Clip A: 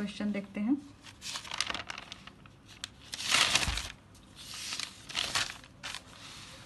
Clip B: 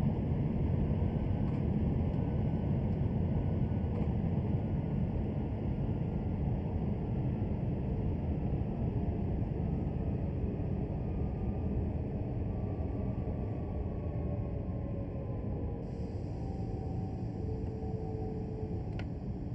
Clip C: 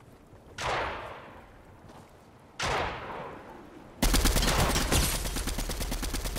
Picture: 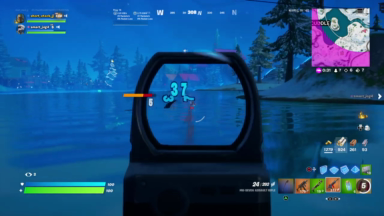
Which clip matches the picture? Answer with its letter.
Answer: C